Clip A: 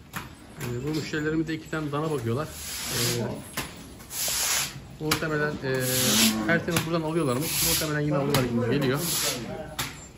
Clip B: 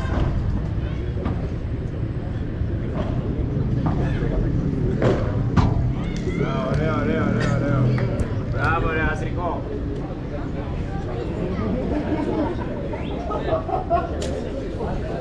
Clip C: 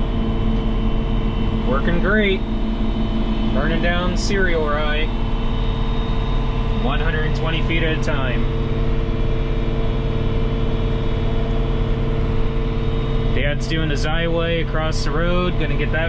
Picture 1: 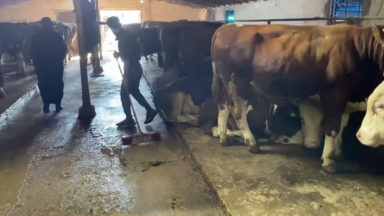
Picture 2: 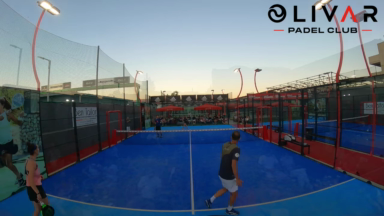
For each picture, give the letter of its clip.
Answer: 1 A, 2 B